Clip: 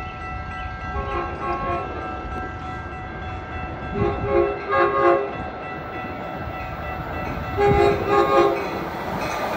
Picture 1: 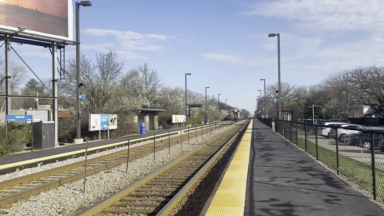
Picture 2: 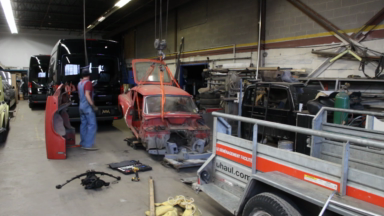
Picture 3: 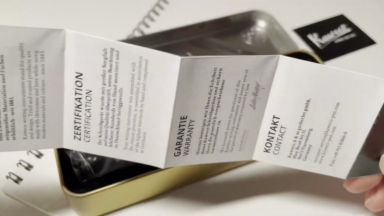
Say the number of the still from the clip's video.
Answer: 1